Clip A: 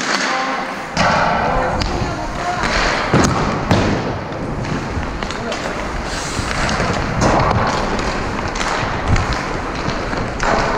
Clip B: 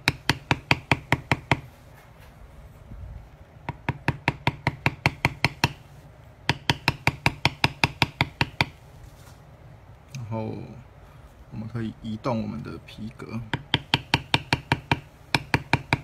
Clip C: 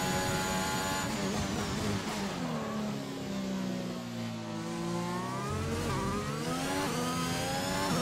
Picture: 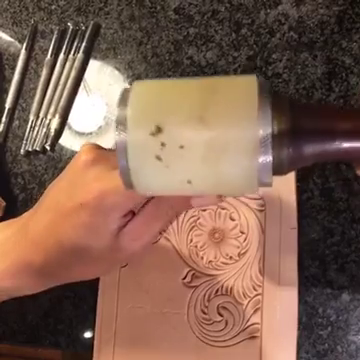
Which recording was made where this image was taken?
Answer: B